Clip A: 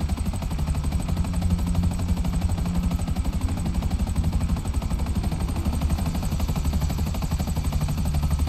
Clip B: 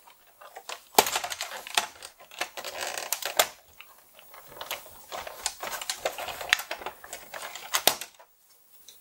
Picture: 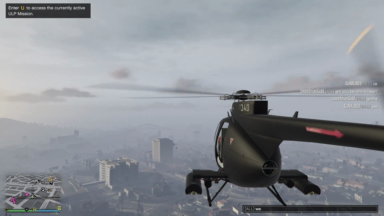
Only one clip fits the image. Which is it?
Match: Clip A